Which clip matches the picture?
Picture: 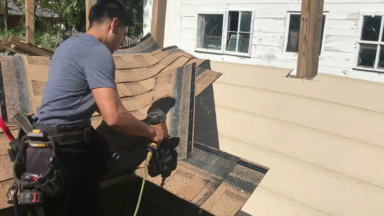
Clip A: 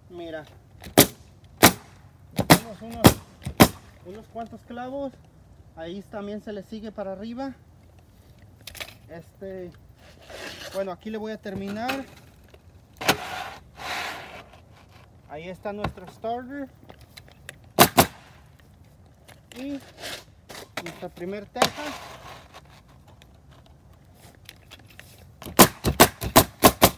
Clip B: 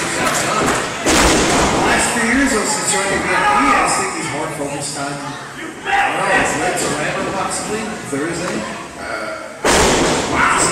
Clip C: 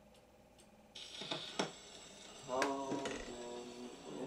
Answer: A